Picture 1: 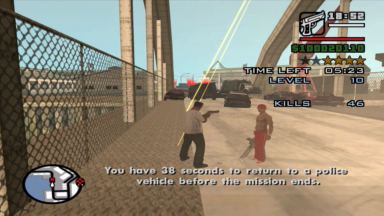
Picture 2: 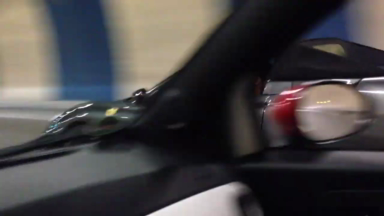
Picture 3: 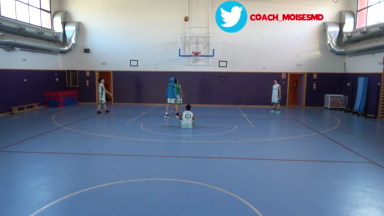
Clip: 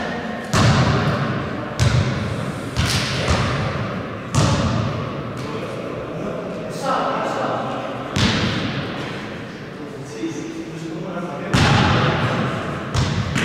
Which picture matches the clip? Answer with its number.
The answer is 3